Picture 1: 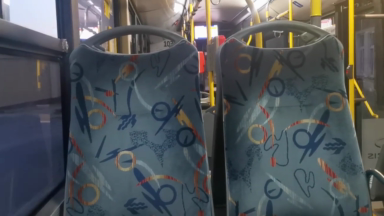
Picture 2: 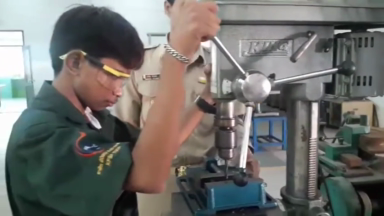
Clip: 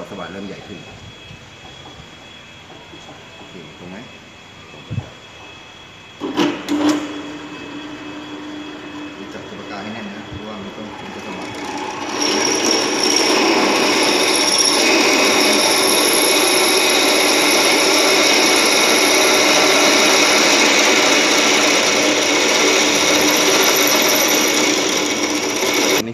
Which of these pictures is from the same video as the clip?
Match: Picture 2